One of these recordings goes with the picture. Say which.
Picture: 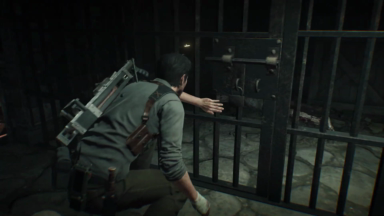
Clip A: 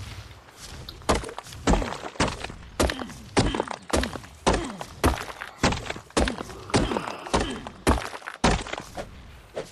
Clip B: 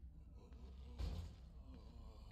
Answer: B